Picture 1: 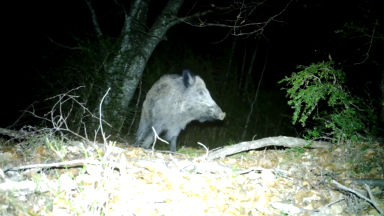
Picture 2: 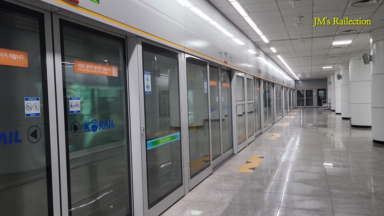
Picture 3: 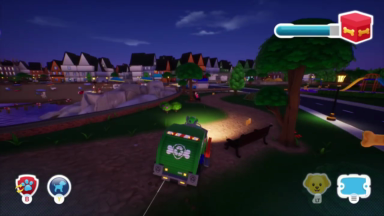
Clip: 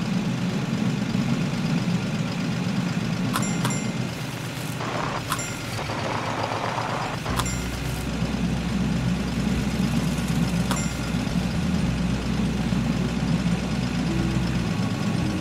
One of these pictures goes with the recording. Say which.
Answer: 3